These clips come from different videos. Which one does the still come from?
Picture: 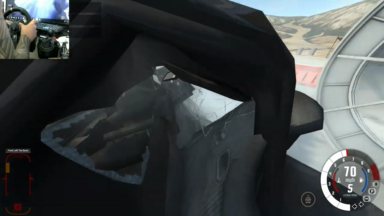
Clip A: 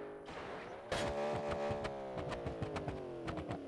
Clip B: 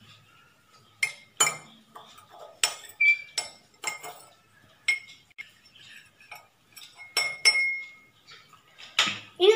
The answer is A